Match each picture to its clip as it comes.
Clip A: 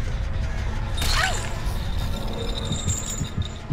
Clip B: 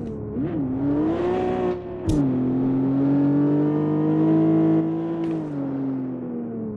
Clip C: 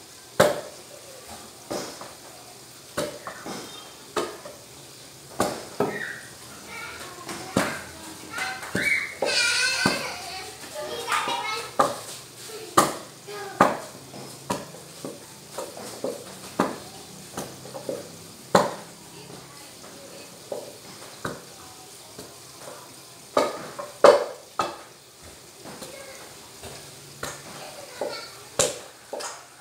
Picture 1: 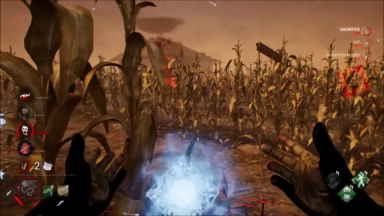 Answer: A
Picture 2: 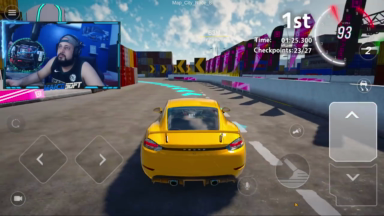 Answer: B